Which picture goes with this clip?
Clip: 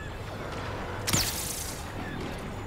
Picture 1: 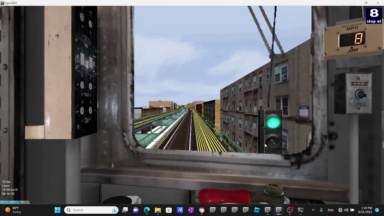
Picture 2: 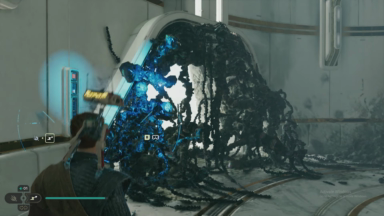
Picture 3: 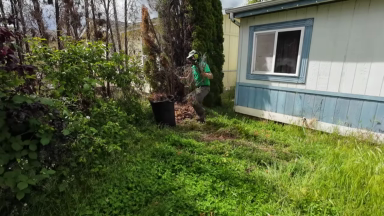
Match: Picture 2